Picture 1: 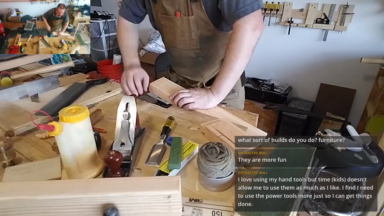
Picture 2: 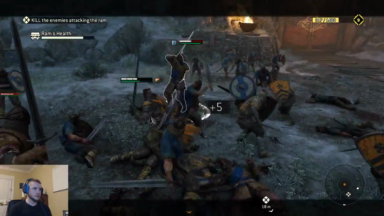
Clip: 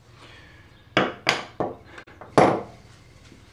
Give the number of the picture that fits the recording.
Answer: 1